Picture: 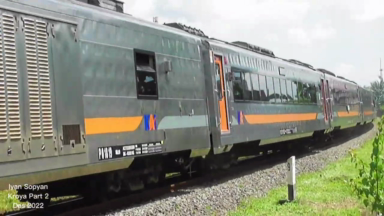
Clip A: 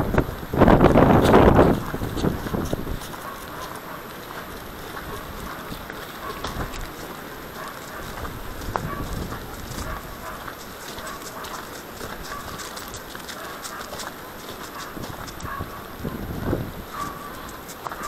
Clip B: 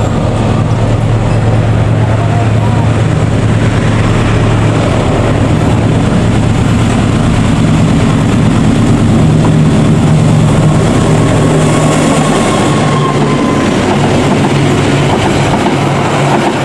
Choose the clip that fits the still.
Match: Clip B